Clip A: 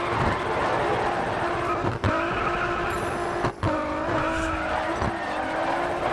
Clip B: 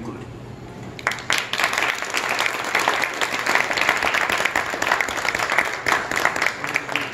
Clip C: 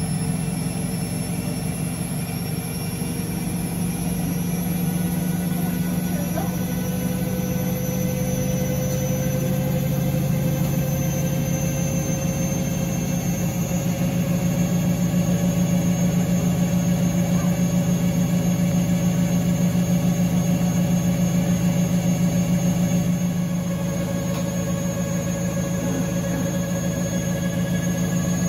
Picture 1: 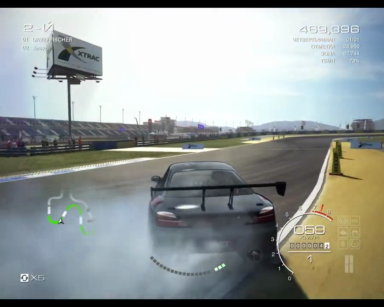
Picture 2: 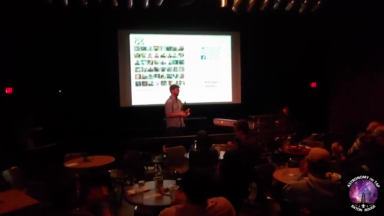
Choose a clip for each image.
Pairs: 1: A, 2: B